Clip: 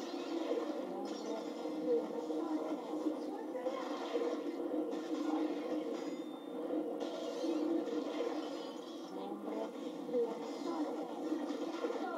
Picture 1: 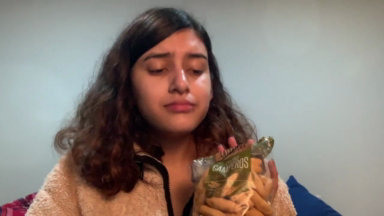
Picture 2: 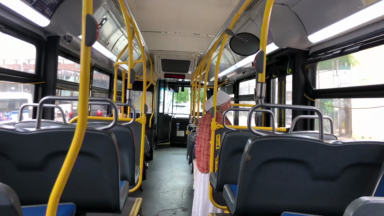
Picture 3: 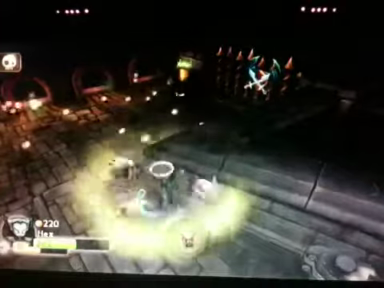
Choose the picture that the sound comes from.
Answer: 3